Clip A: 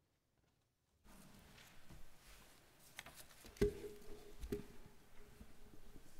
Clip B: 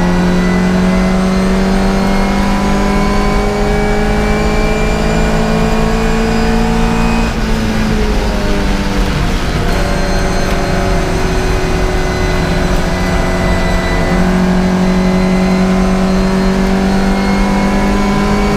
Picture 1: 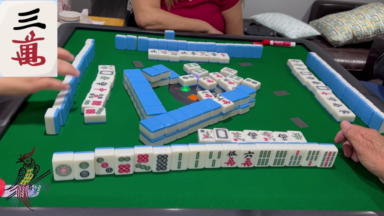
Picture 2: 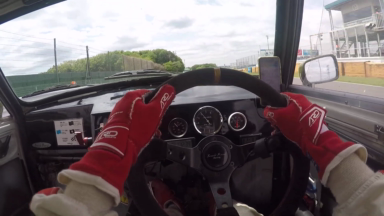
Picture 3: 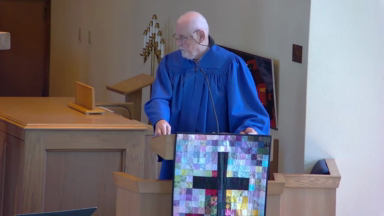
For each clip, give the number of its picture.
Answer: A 3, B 2